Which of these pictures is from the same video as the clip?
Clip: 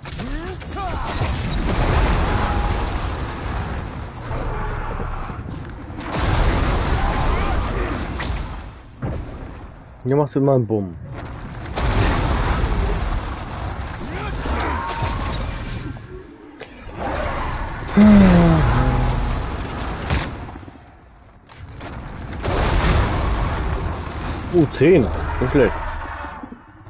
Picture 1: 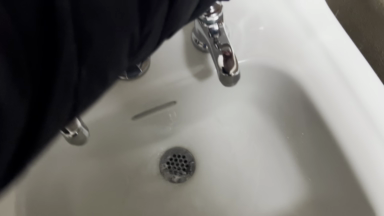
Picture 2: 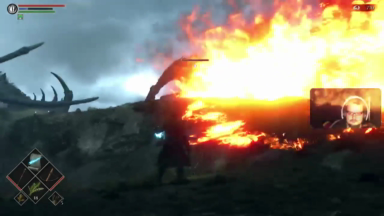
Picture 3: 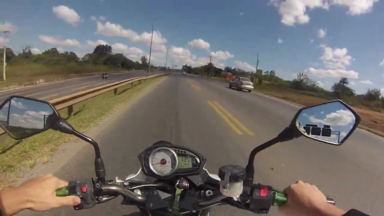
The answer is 2